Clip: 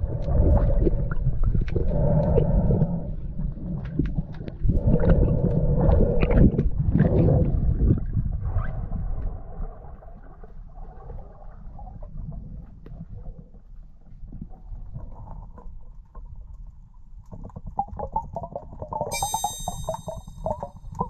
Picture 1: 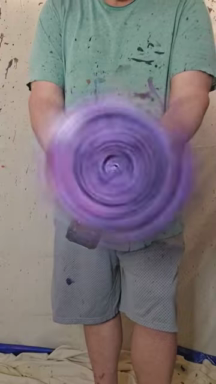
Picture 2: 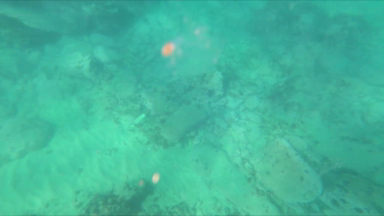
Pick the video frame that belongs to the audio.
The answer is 2